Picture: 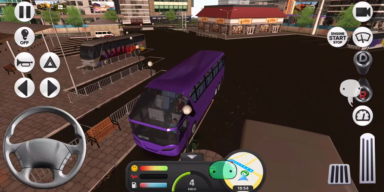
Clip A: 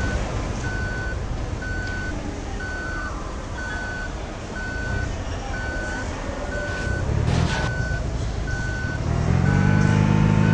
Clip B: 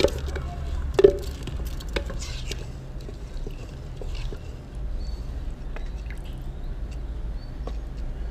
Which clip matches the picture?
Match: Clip A